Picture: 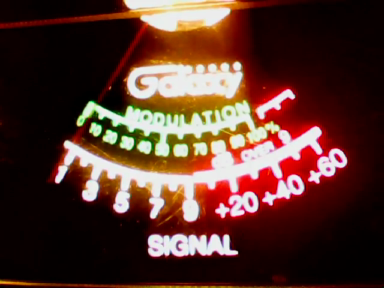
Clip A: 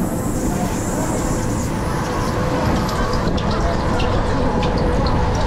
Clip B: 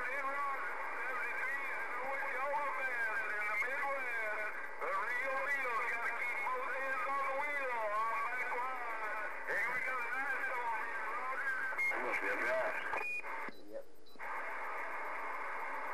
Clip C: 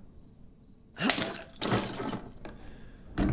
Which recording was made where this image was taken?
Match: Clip B